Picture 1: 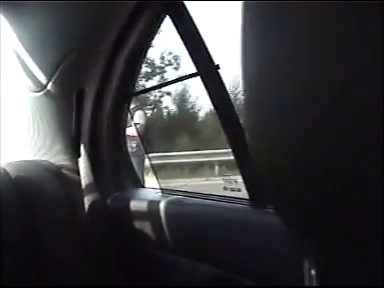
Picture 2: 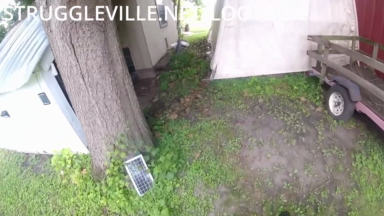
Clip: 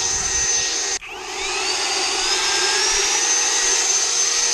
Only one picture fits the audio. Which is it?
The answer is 2